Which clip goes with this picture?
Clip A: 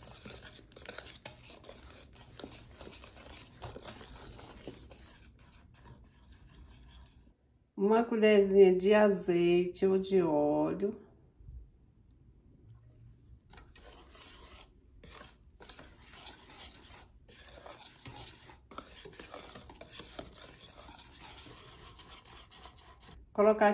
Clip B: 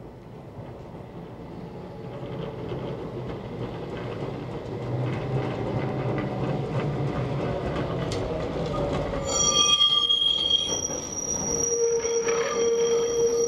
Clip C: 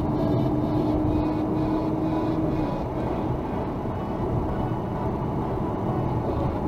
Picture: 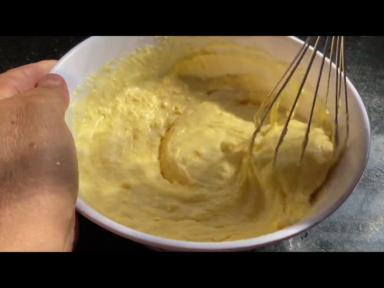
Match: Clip A